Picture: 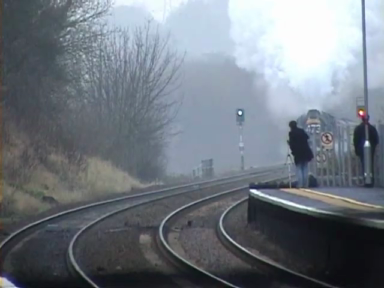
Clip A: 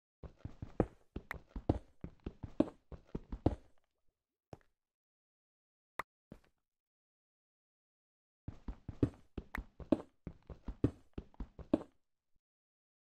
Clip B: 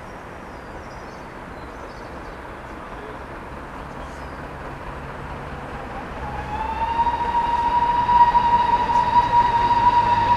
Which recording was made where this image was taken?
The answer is B